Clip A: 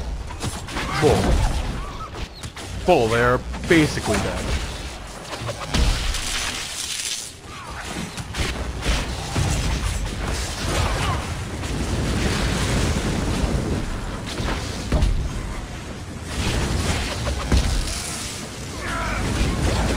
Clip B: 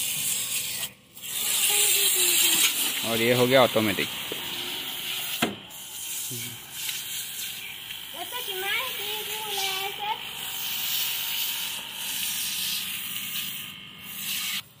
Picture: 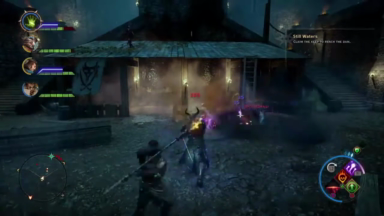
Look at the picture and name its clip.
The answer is A